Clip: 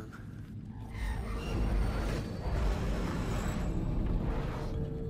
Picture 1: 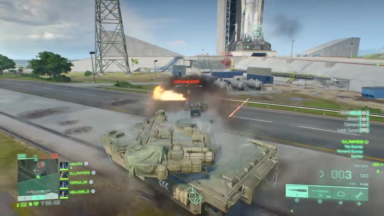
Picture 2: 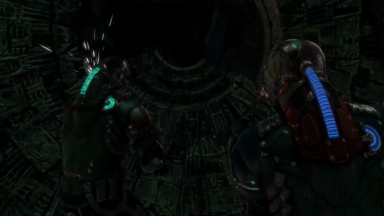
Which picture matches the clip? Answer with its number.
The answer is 2